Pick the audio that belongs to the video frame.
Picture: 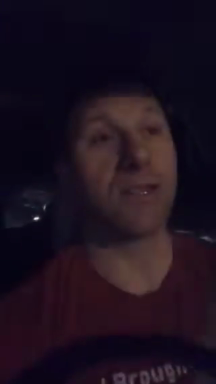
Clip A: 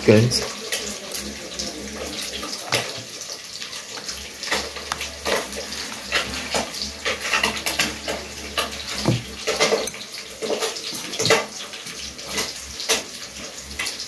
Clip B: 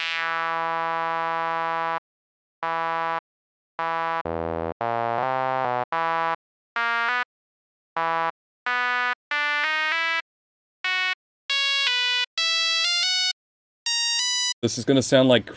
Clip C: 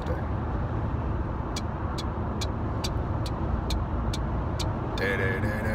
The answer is C